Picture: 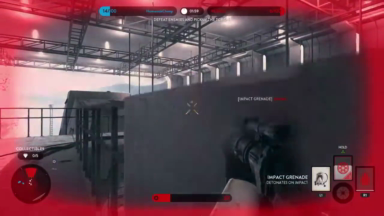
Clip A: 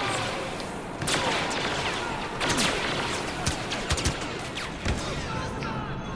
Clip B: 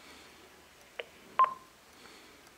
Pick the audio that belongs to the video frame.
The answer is A